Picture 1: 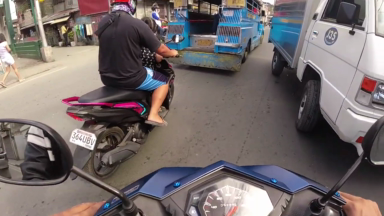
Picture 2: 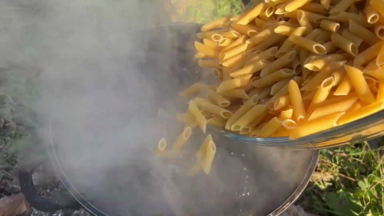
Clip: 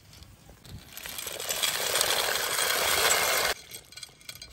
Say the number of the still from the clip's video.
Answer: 2